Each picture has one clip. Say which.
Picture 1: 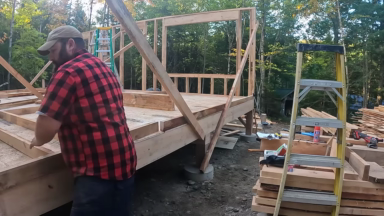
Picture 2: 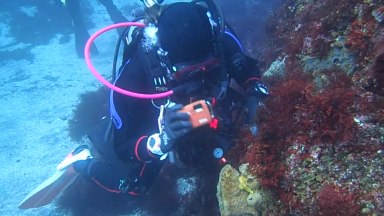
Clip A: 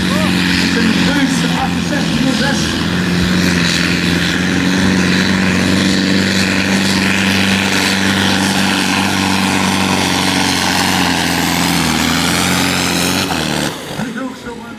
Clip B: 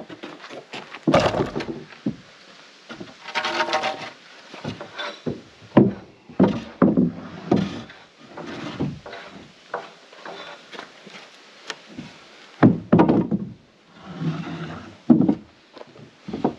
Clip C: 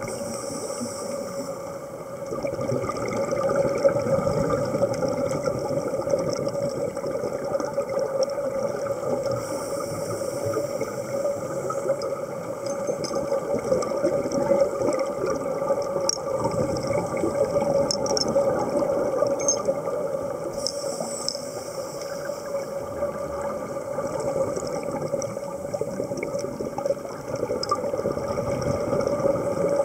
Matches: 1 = B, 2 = C